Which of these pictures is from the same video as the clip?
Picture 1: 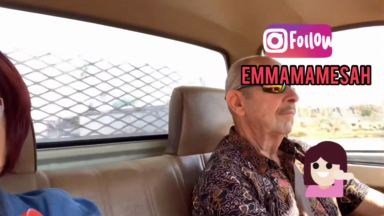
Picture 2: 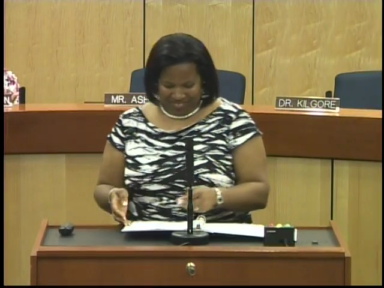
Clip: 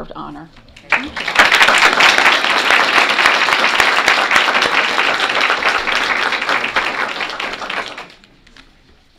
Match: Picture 2